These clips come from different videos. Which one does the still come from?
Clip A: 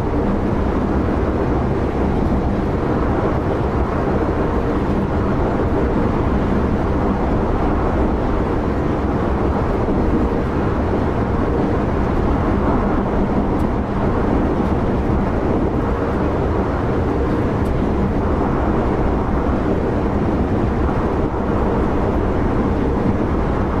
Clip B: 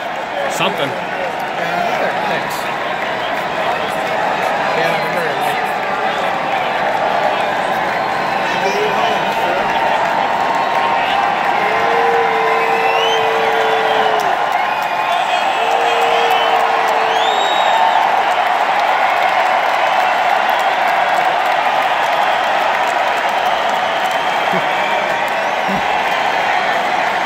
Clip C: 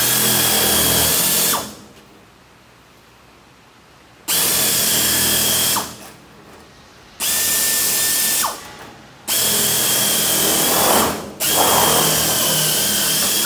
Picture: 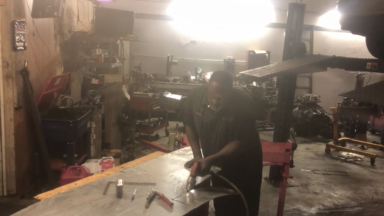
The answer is C